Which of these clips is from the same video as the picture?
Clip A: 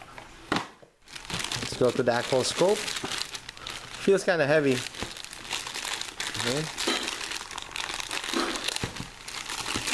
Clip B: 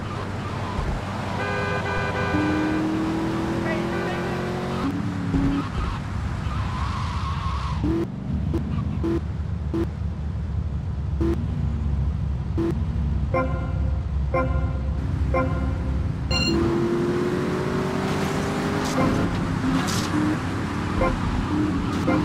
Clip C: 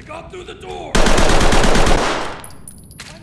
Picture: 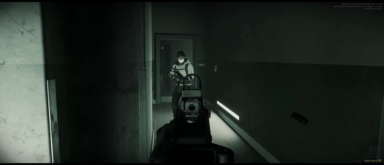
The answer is C